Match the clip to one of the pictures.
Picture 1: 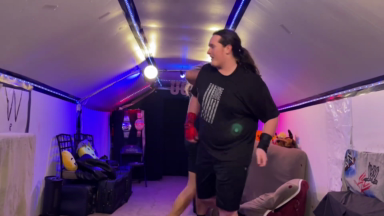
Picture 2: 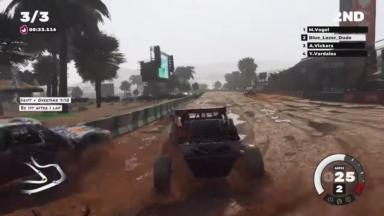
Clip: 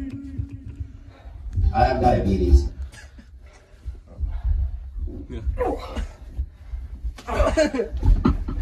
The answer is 1